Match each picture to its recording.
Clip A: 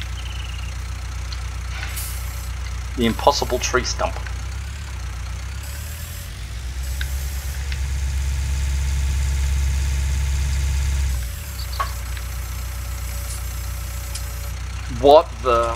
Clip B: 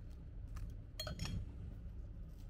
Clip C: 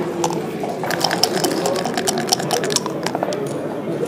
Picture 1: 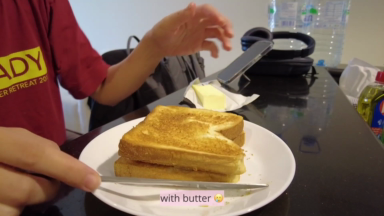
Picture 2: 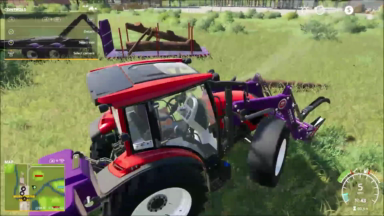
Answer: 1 B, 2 A